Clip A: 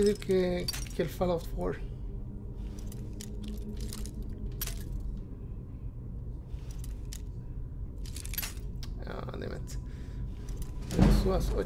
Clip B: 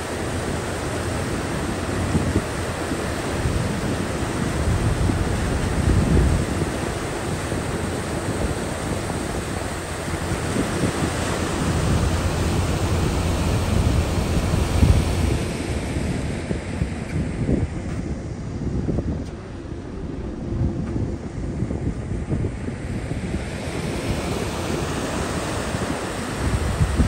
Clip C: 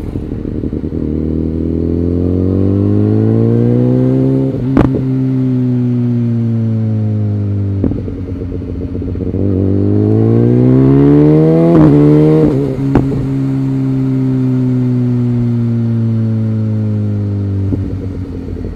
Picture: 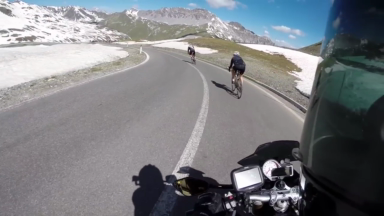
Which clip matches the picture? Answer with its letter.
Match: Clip C